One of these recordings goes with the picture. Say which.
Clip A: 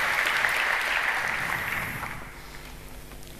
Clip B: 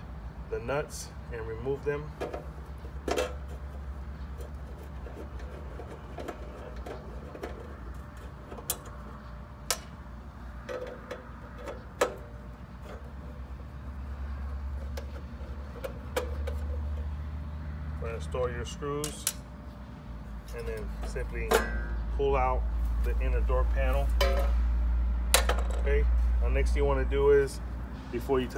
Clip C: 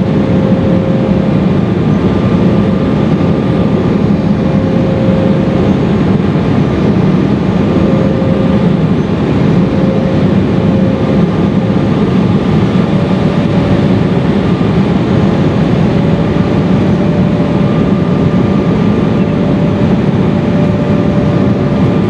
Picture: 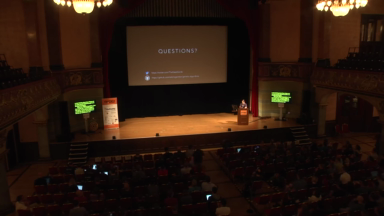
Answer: A